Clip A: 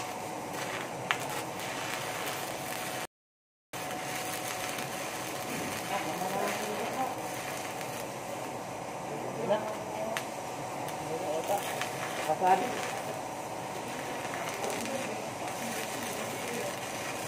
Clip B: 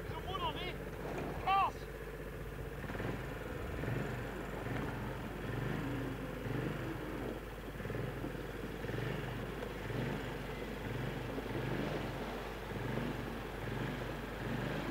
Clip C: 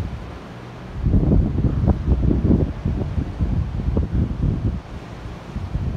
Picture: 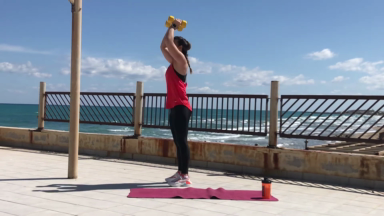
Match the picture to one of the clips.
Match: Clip C